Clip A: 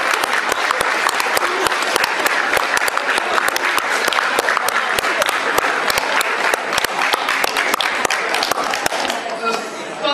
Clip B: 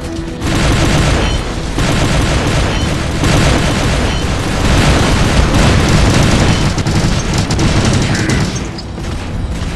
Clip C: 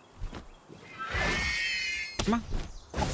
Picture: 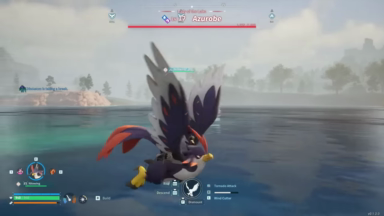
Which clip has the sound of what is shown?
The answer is C